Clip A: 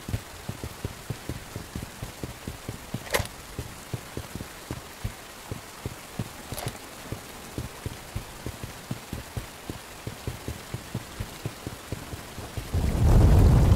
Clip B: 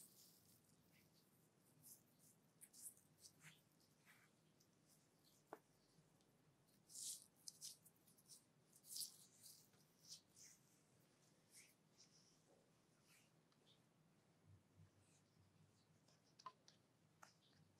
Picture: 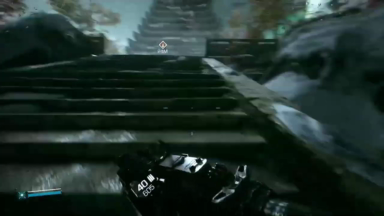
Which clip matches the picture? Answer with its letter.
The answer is A